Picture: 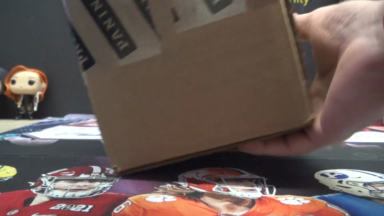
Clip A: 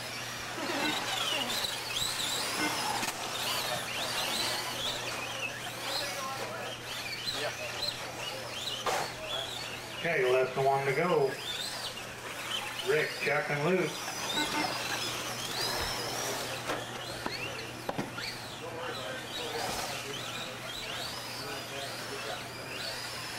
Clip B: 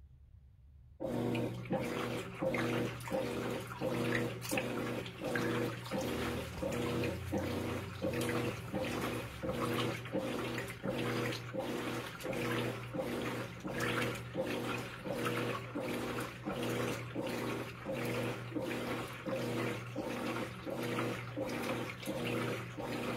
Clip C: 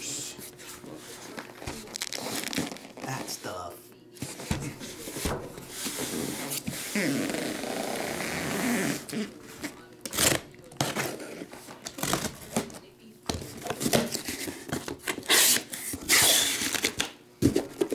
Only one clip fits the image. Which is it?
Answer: C